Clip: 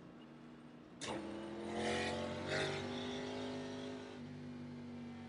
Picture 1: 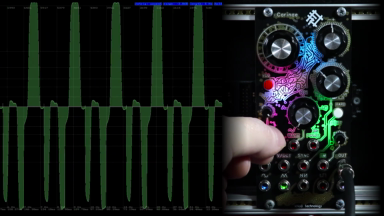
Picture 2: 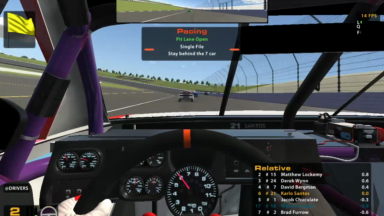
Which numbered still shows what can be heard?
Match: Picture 2